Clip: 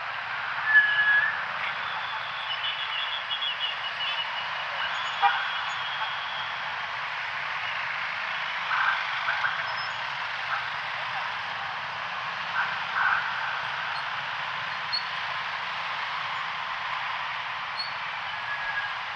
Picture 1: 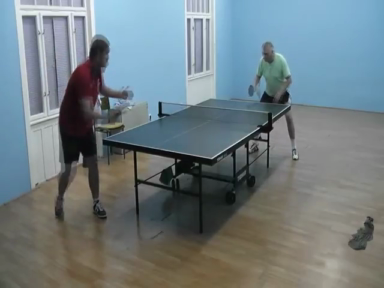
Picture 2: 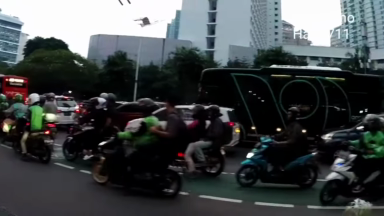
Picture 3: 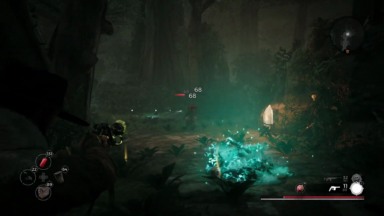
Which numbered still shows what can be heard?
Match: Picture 2